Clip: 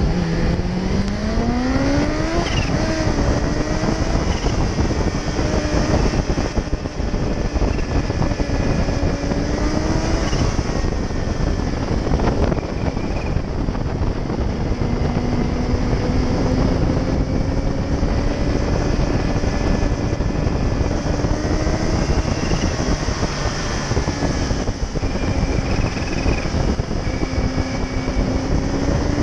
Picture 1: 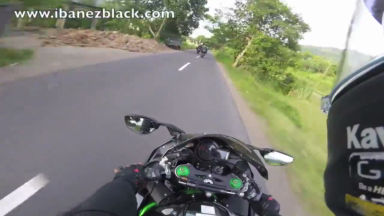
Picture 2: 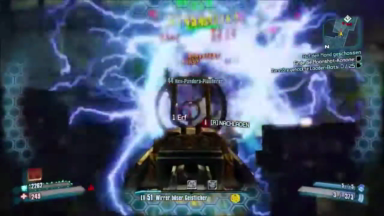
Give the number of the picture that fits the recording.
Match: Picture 1